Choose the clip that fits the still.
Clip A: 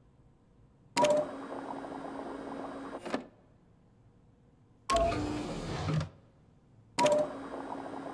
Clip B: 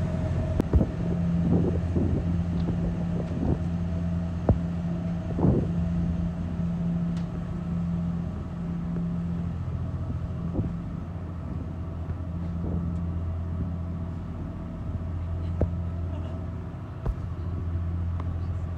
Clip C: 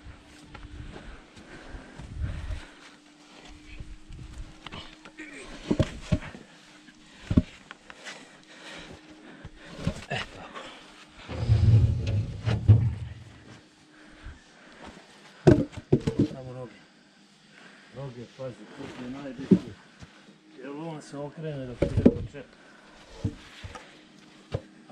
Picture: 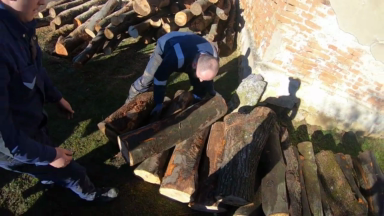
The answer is C